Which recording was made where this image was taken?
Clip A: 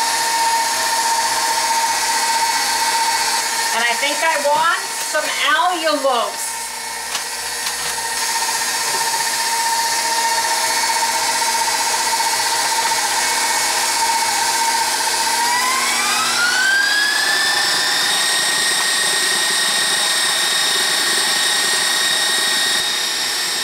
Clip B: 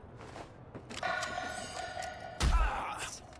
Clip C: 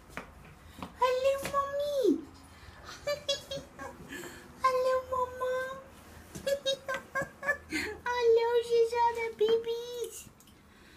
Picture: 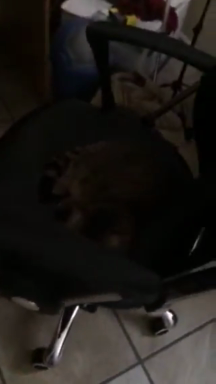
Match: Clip C